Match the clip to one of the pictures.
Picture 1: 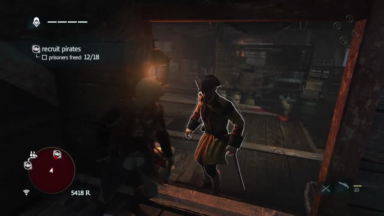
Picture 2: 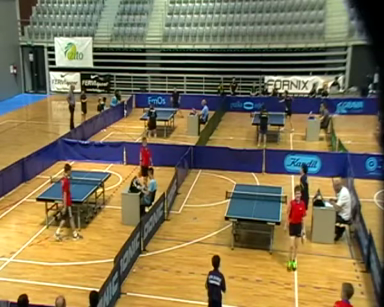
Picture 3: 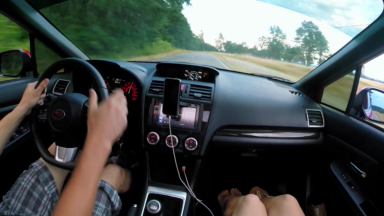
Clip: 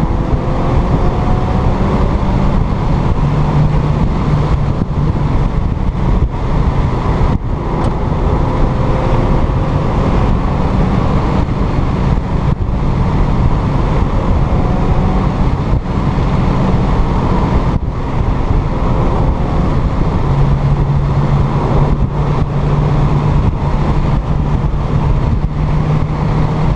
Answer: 3